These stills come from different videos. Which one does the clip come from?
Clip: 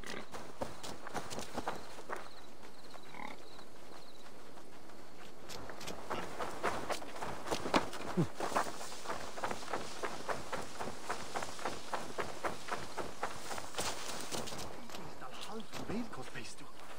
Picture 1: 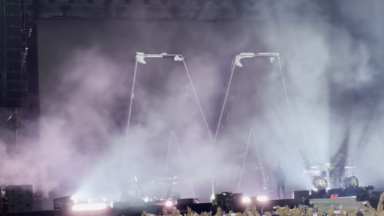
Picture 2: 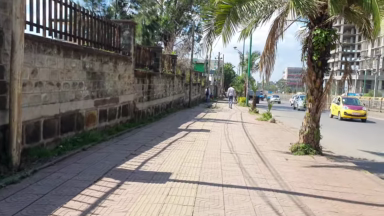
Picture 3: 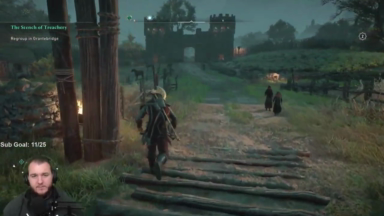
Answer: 3